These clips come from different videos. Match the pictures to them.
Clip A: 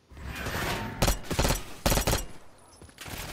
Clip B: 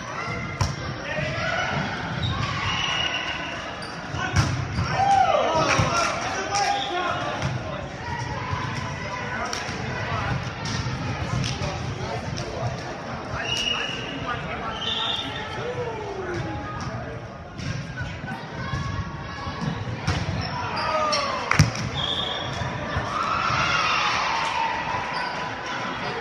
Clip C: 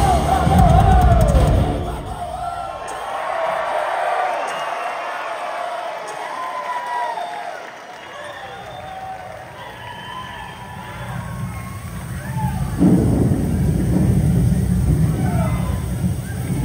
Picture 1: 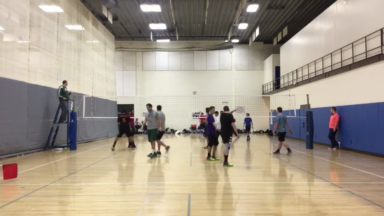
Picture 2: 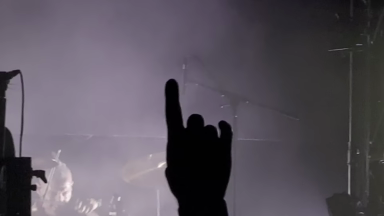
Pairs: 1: B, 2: C